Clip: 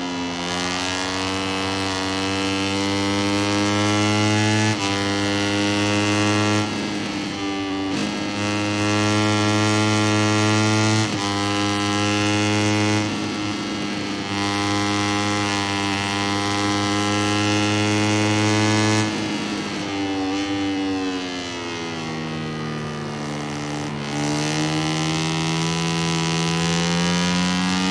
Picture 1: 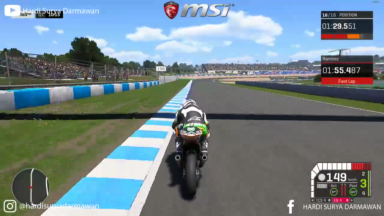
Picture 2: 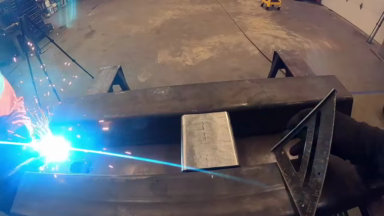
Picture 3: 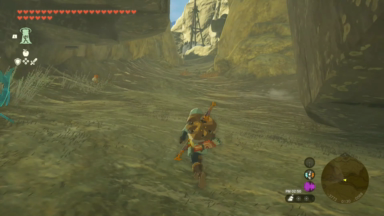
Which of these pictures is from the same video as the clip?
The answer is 1